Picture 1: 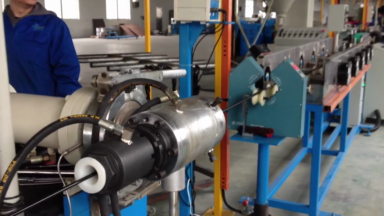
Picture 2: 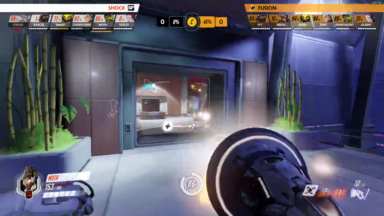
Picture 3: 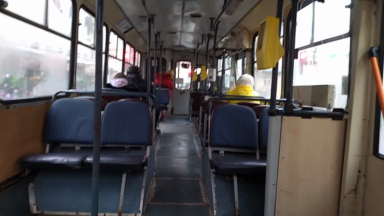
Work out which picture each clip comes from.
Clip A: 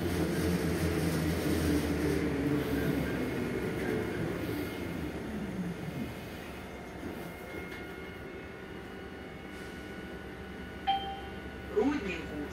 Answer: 3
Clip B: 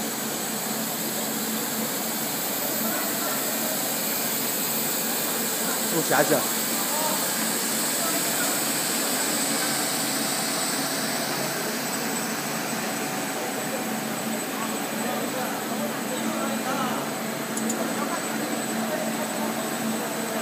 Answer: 1